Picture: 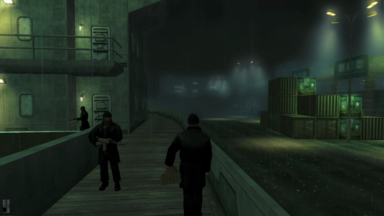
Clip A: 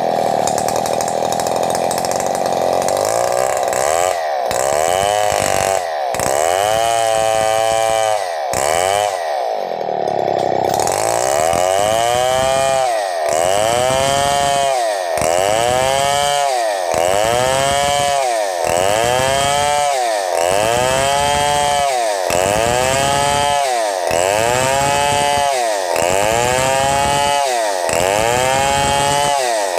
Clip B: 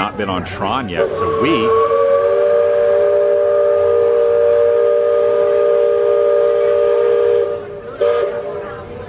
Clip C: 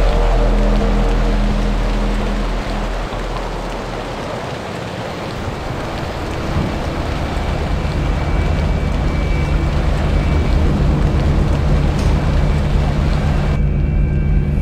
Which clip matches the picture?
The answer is C